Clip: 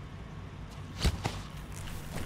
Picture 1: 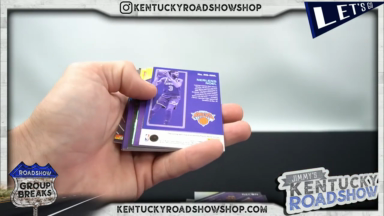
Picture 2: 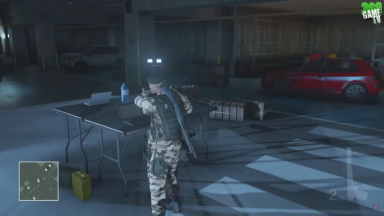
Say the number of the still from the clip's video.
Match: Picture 2